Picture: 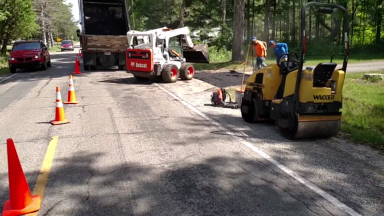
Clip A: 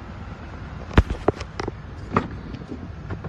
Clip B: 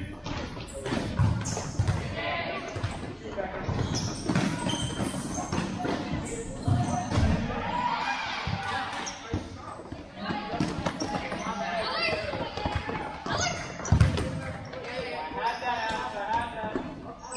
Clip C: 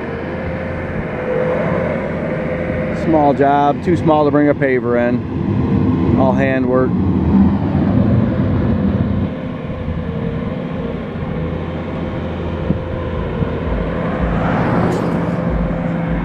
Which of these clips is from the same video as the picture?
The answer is C